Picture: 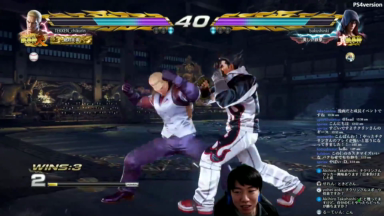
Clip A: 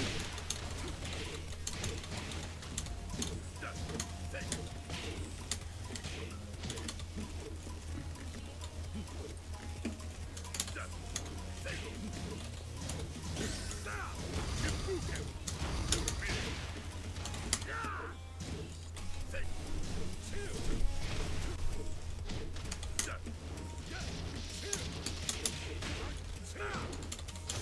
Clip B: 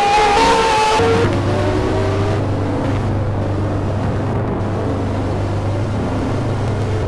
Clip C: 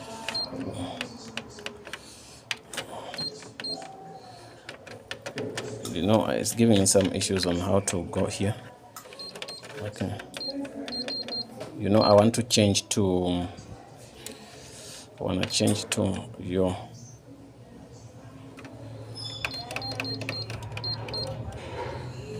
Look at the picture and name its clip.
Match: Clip A